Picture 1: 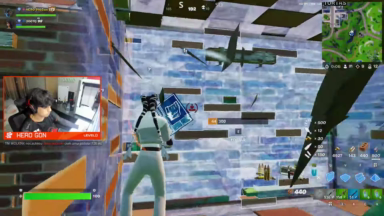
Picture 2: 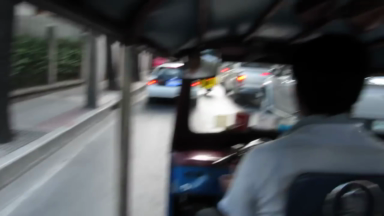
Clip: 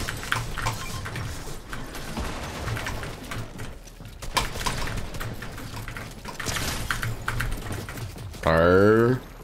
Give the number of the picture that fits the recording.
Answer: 1